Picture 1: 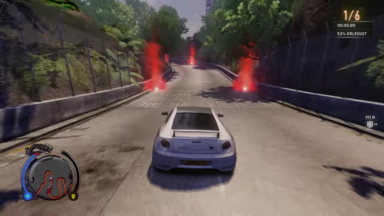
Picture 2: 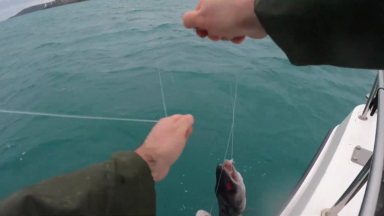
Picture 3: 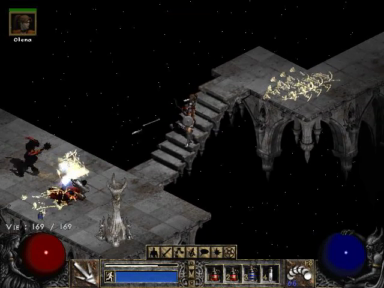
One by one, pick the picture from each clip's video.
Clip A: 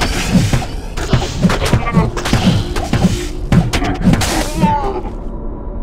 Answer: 3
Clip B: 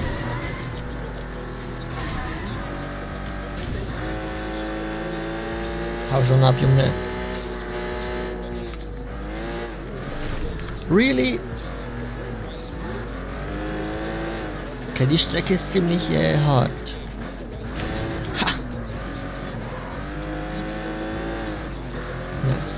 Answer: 1